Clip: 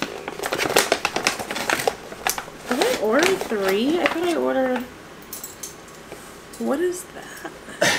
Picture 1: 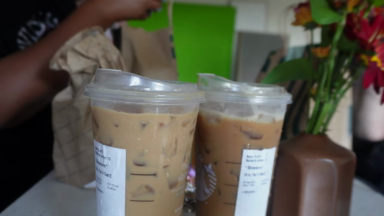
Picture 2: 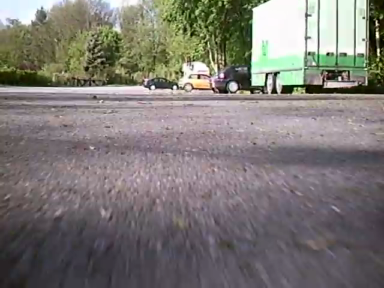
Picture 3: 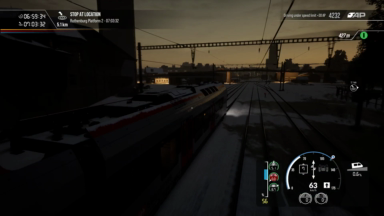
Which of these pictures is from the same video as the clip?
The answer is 1